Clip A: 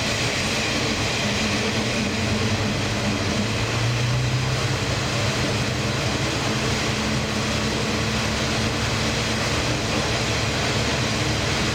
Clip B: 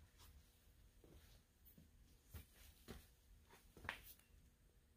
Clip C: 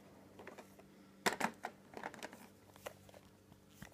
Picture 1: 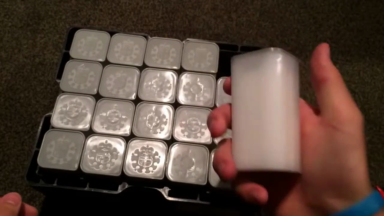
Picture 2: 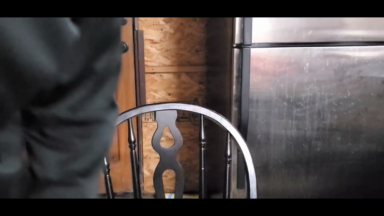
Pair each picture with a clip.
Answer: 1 C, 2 B